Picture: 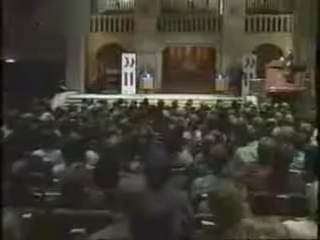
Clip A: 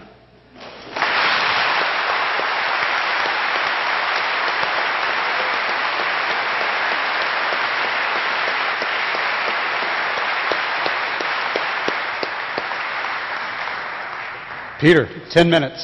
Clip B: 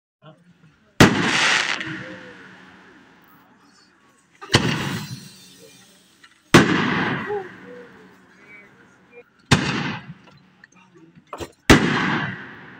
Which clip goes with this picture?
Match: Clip A